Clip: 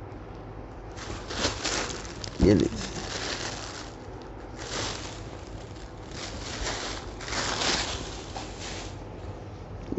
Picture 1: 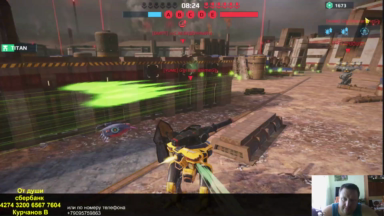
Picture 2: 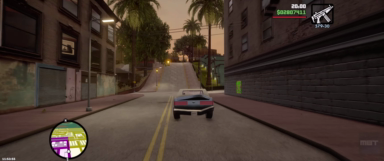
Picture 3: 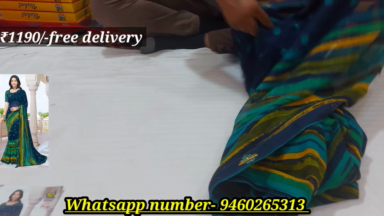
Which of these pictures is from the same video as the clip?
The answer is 3